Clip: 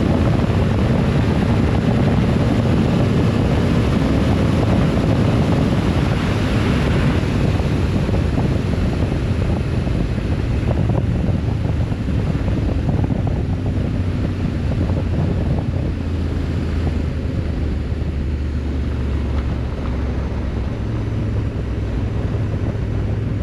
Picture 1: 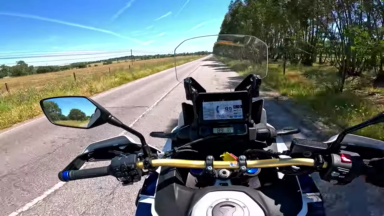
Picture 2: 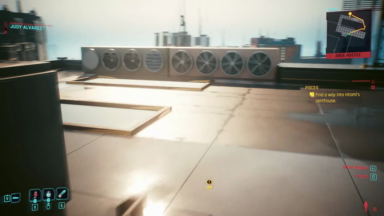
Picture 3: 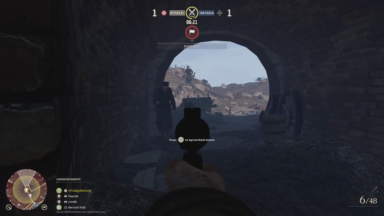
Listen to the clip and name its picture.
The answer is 1